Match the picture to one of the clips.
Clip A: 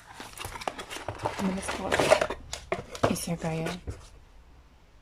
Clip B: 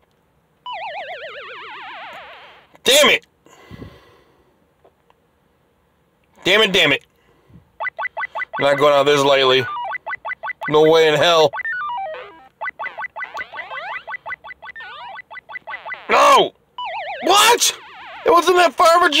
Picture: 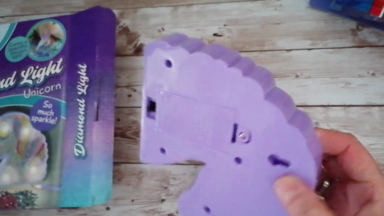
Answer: A